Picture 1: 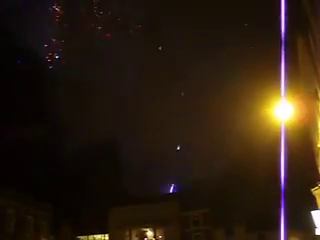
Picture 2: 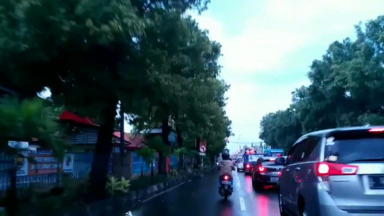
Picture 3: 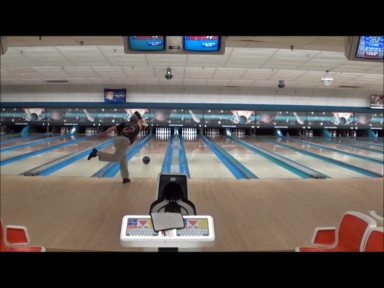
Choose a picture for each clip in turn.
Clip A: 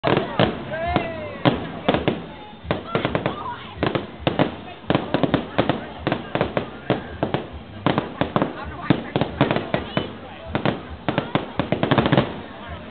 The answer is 1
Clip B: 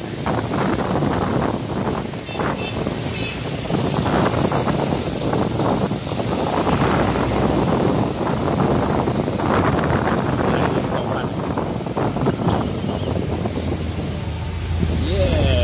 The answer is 2